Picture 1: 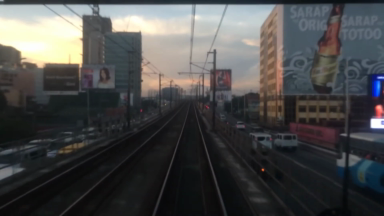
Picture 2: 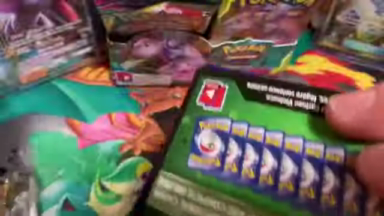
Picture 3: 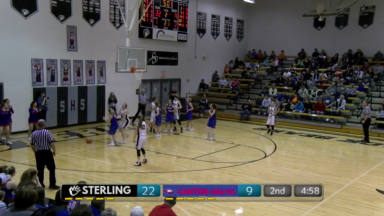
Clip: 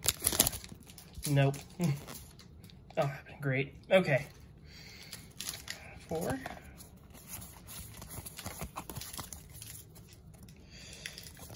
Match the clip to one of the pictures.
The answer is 2